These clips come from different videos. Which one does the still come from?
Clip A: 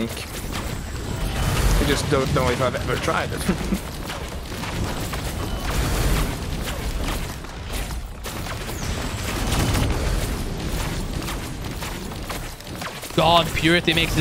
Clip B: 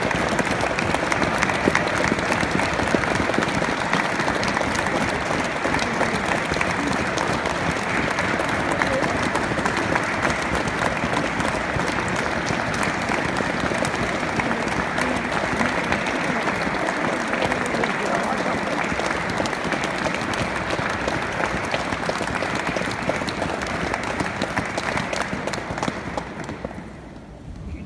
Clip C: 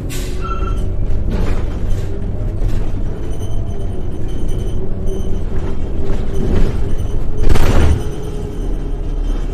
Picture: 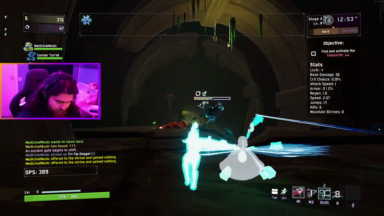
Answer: A